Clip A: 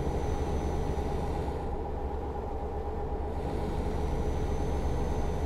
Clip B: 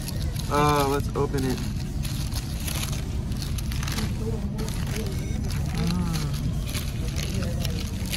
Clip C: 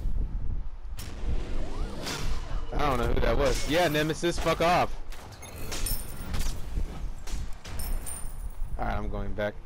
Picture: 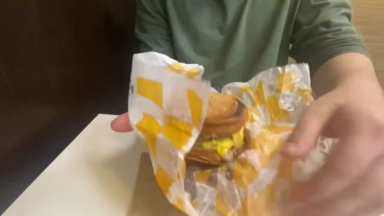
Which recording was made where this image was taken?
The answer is B